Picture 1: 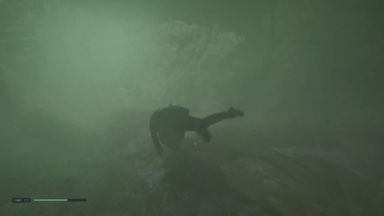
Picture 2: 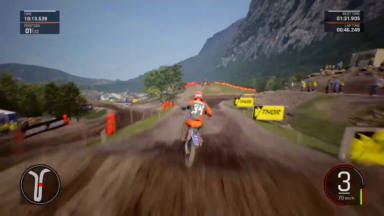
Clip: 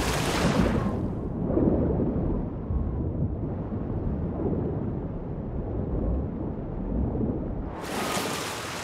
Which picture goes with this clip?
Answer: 1